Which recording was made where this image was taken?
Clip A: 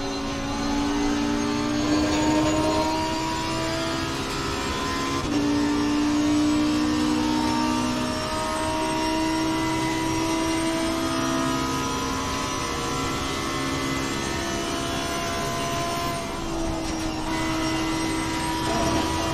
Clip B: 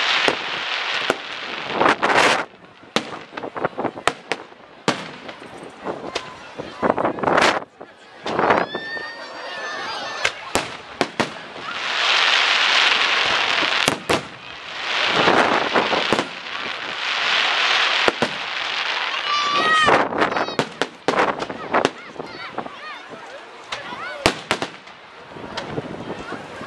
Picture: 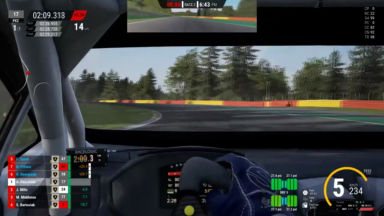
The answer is A